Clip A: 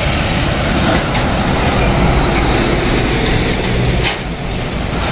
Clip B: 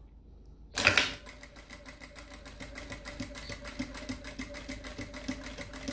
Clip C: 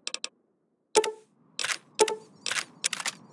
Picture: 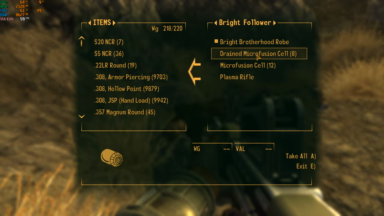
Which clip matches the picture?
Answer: C